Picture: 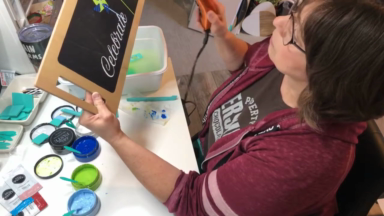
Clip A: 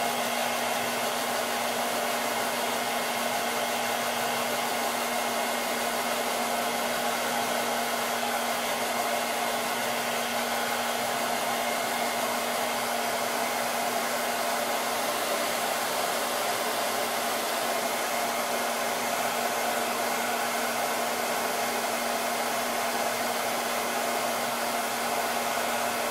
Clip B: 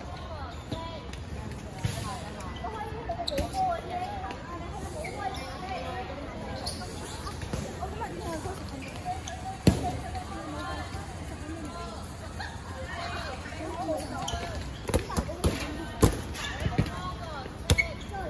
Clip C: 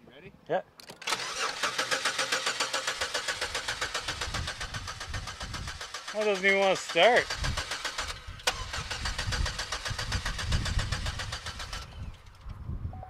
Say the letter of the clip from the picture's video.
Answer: A